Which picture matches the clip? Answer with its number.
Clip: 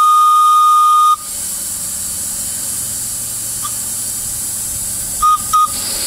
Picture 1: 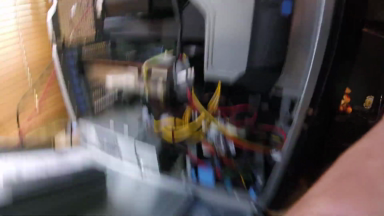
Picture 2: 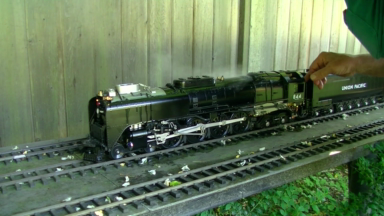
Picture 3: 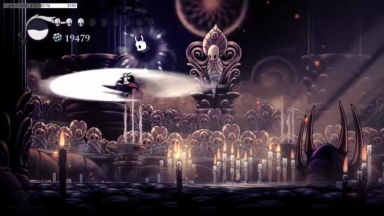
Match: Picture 2